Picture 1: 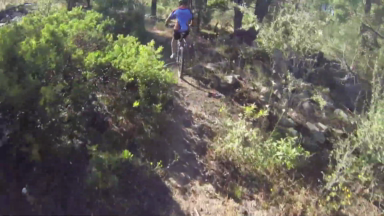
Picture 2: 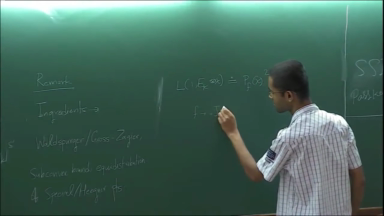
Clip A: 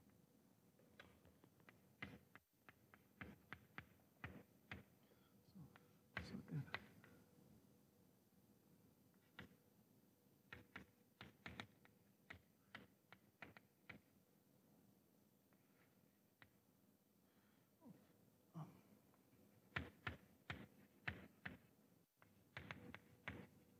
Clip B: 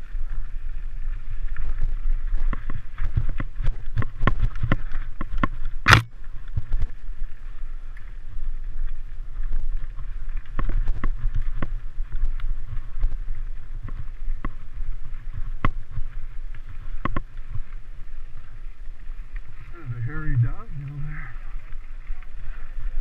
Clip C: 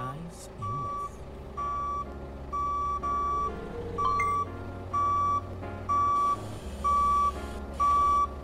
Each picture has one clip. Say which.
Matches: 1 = B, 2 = A